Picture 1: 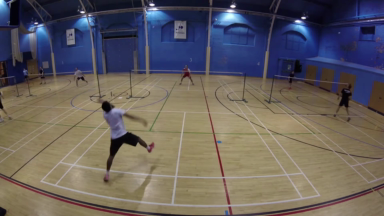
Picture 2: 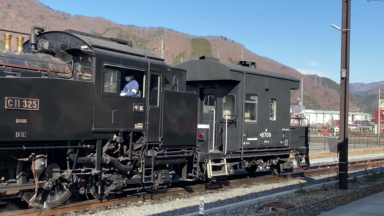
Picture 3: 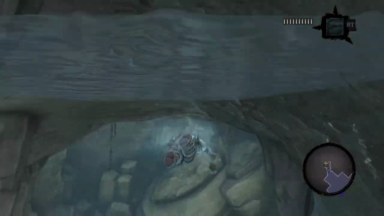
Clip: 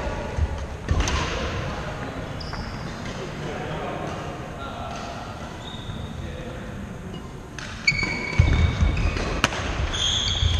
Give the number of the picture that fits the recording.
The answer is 1